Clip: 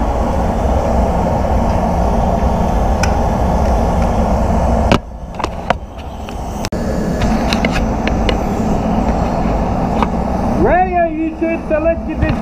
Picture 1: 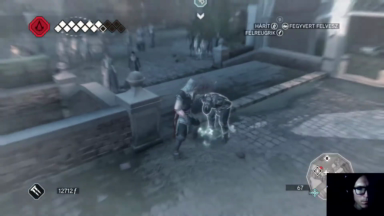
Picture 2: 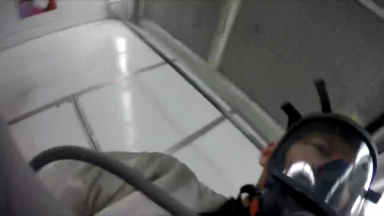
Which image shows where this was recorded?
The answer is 2